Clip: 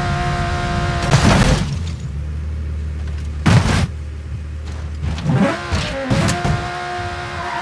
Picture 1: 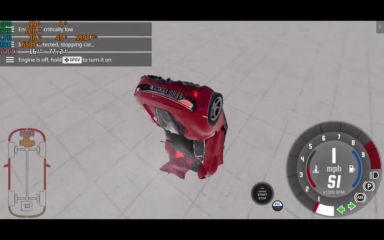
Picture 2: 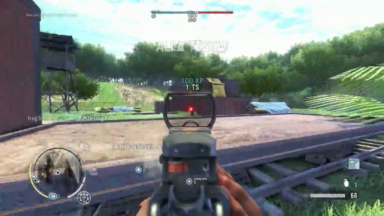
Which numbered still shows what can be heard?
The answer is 1